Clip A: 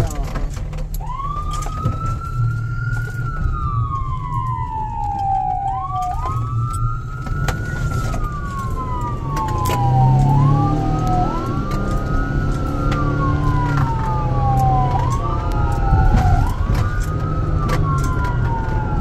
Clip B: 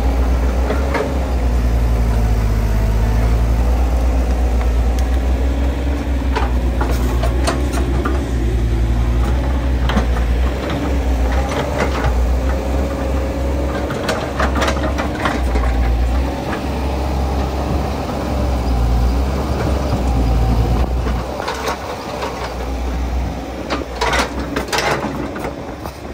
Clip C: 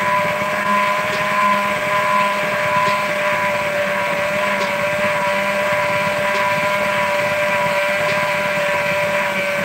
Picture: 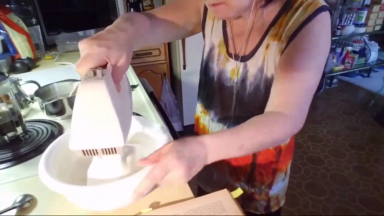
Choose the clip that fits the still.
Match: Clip C